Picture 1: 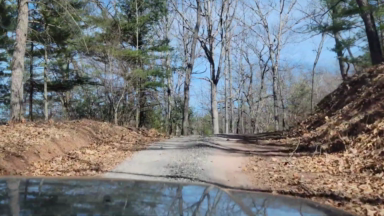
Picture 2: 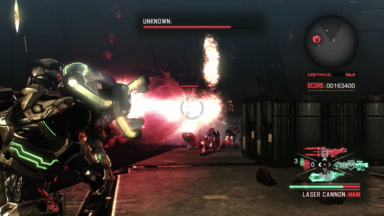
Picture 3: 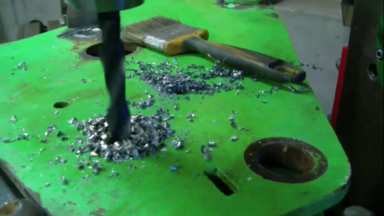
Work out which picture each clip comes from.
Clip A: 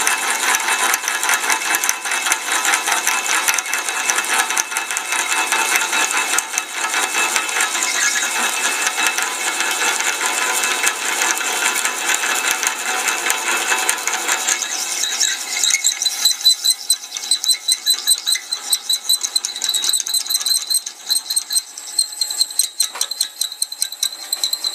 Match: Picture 3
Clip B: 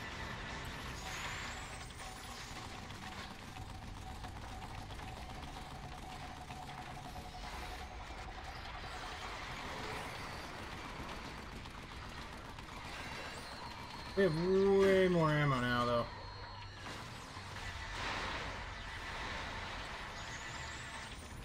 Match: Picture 2